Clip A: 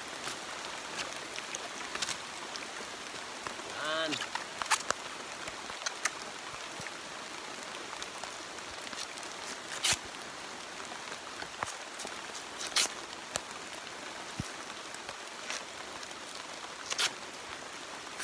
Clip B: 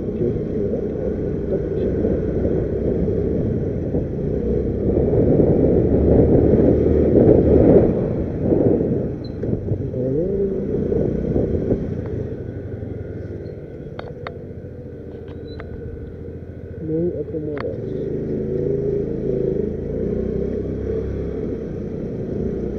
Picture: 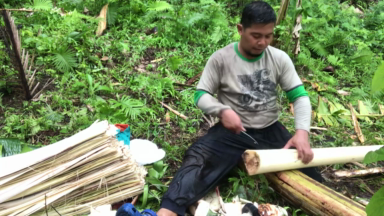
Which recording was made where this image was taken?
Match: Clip A